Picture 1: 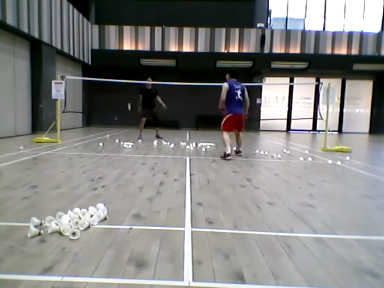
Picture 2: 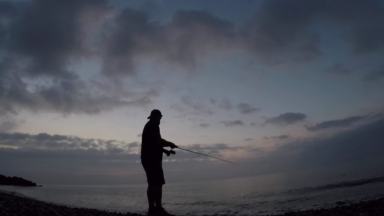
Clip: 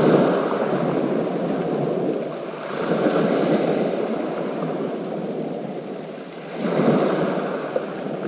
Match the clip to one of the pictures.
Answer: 2